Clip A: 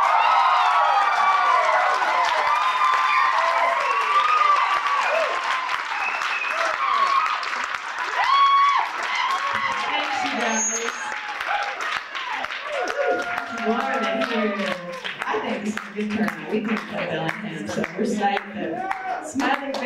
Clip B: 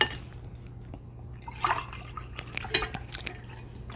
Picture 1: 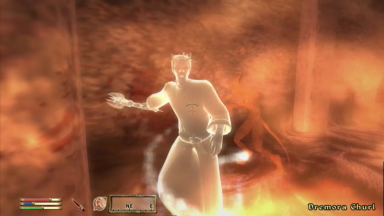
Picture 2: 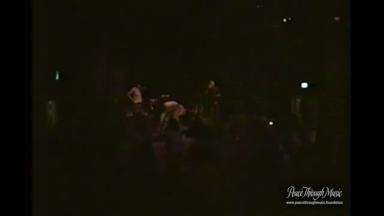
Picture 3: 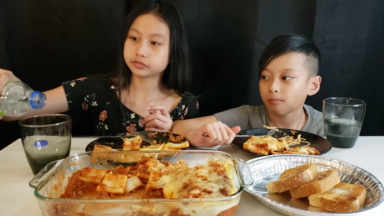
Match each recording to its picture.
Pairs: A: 2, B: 3